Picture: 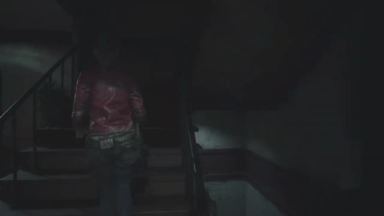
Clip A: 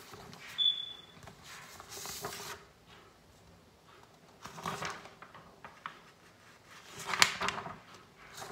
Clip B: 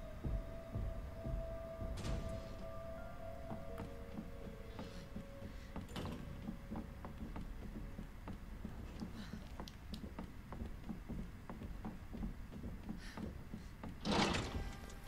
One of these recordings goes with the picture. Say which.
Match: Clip B